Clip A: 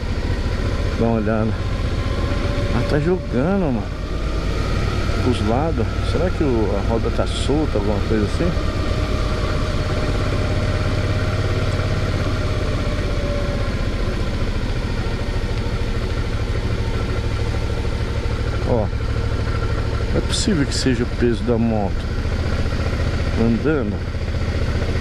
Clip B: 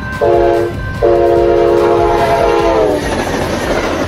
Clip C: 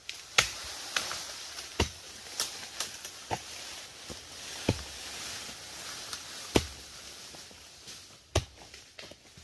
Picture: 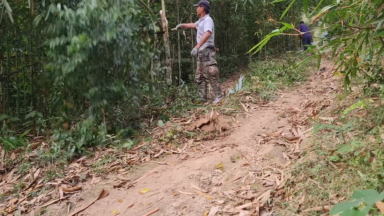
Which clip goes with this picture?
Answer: C